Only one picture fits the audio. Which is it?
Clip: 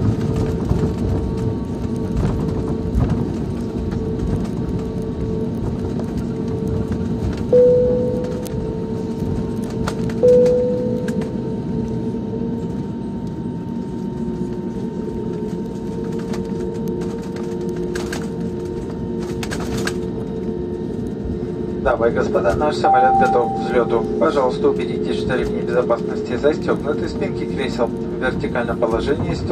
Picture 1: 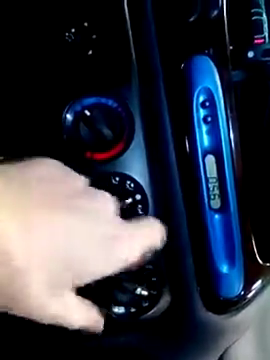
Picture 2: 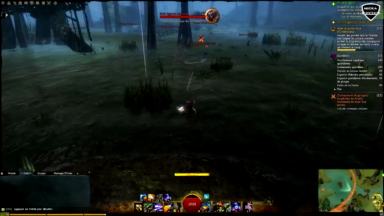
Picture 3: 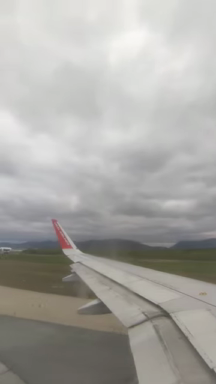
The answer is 3